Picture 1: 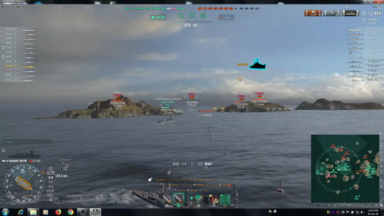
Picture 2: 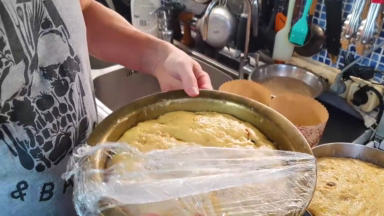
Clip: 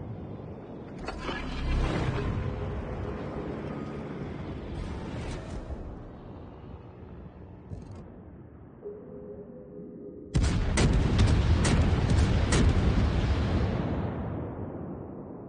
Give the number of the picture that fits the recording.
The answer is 1